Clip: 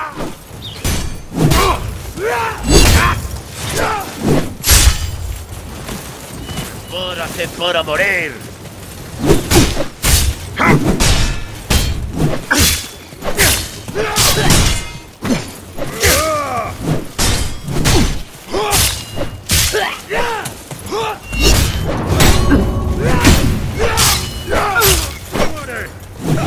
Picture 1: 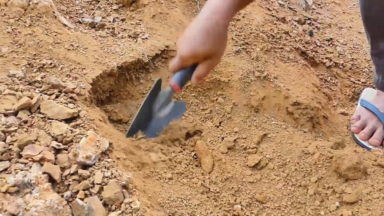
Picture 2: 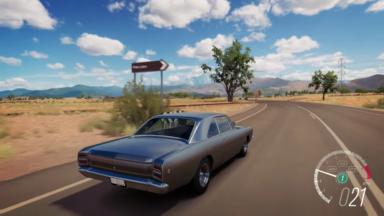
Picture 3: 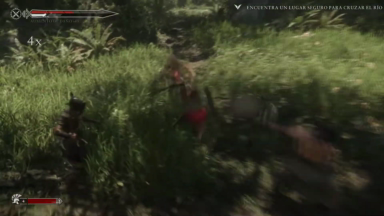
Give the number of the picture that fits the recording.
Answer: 3